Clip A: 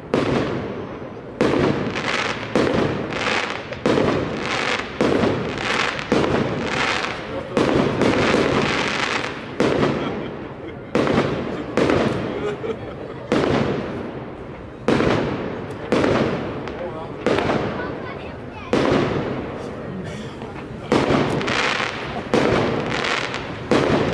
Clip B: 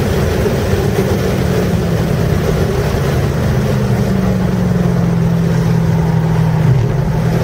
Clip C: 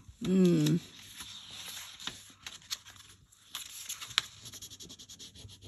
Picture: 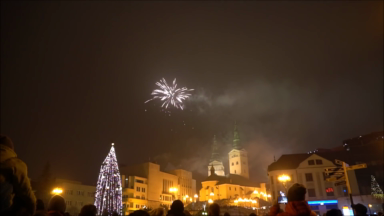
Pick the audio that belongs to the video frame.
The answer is A